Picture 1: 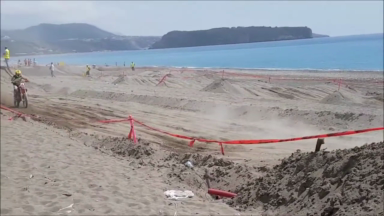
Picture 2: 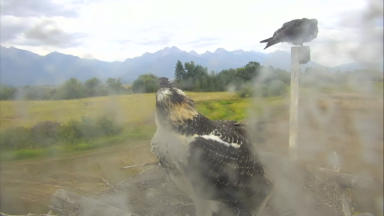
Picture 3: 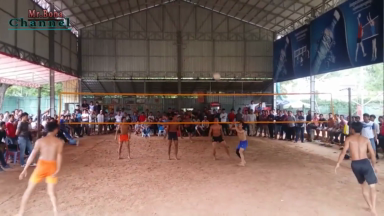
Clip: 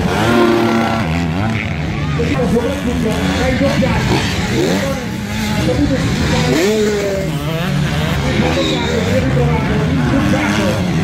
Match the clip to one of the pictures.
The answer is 1